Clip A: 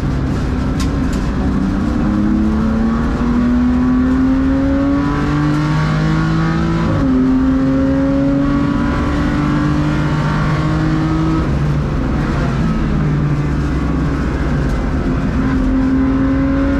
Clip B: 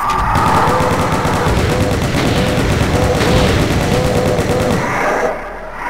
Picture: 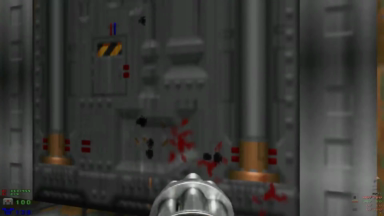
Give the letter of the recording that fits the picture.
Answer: B